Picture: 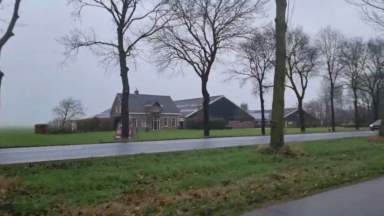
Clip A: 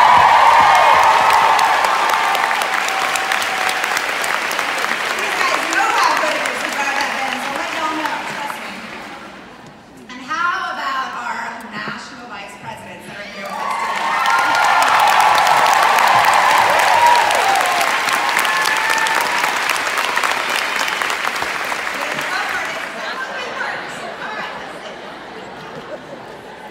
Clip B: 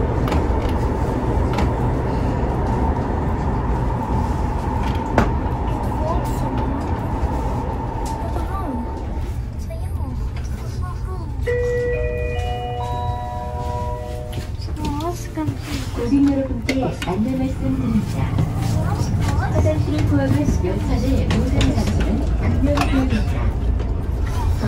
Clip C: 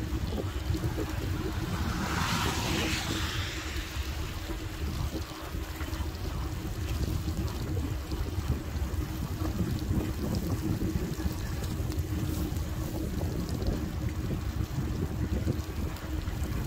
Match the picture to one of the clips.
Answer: C